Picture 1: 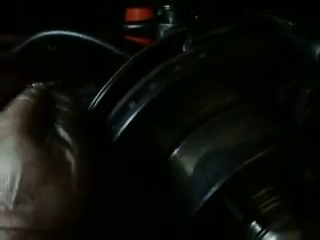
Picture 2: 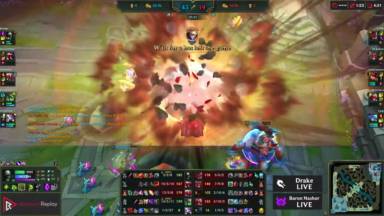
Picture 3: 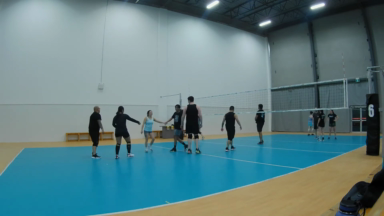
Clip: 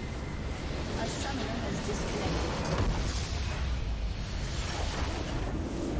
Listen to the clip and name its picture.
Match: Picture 2